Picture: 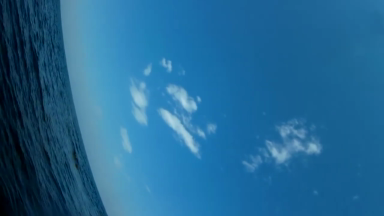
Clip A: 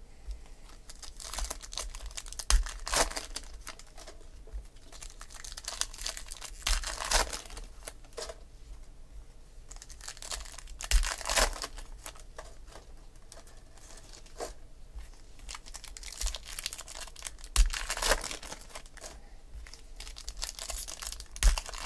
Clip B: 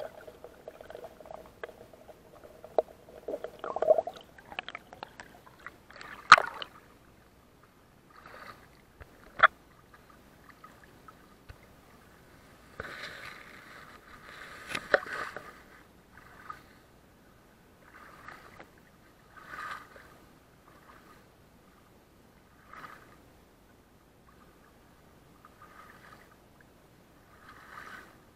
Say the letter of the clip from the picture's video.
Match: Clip B